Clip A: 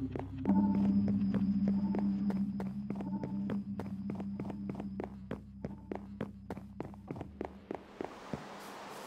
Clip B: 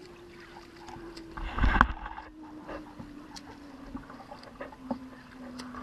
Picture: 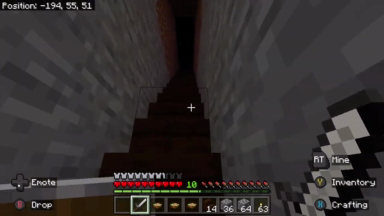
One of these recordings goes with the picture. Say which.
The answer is A